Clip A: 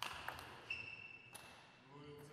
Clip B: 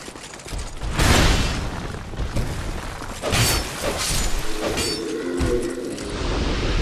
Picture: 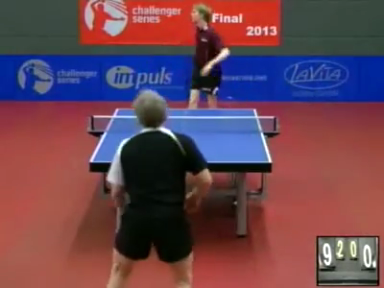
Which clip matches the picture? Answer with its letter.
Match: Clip A